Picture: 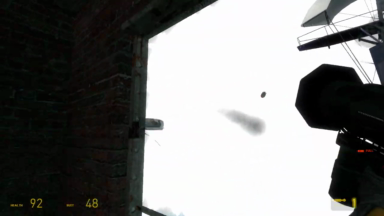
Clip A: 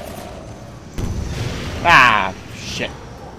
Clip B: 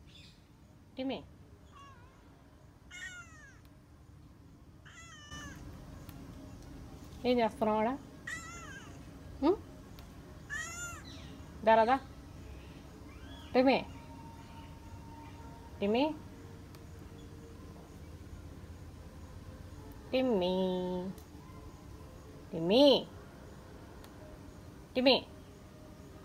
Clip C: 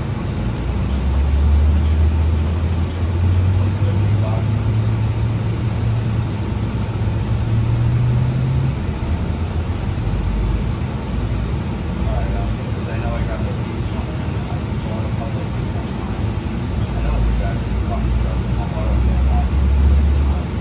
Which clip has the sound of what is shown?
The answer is A